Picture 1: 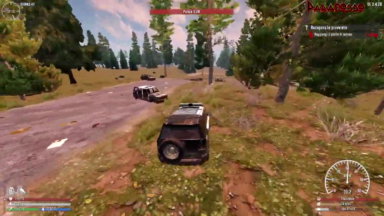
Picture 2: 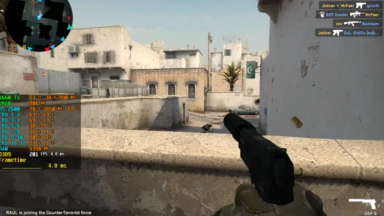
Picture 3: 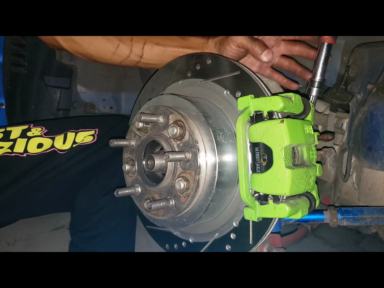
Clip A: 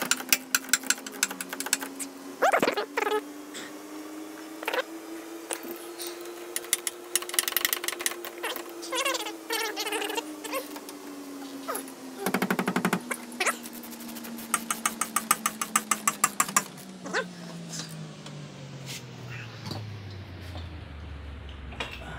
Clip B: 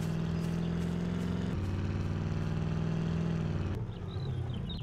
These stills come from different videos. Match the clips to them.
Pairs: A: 3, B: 1